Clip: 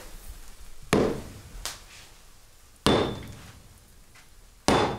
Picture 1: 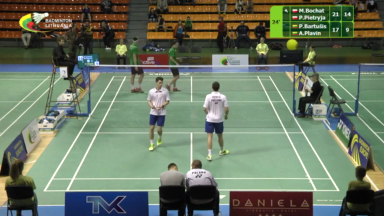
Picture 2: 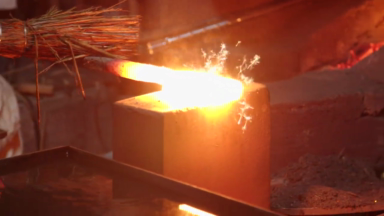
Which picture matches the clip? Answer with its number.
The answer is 2